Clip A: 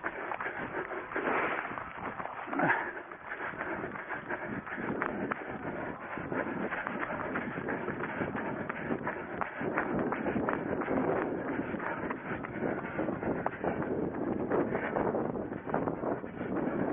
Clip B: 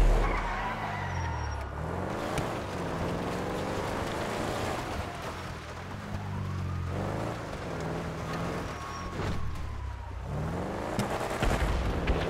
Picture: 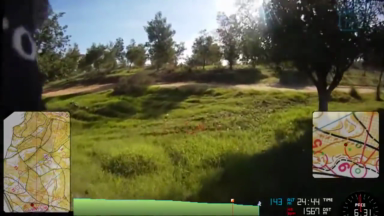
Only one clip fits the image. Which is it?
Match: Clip A